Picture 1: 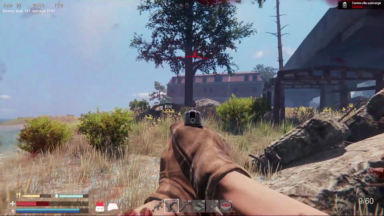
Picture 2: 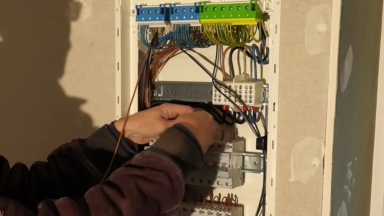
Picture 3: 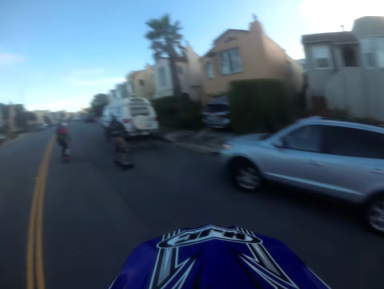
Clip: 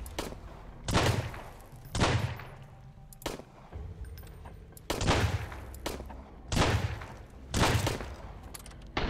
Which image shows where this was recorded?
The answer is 1